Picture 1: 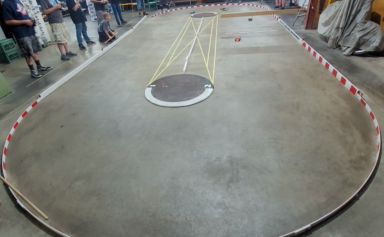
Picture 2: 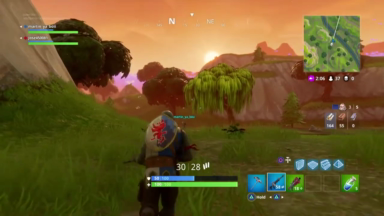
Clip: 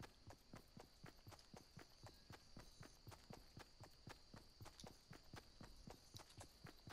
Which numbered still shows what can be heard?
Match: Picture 2